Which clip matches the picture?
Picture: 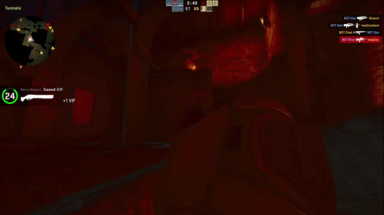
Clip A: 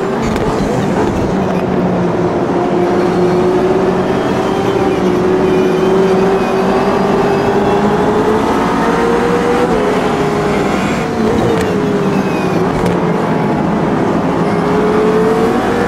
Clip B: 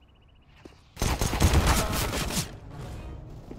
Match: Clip B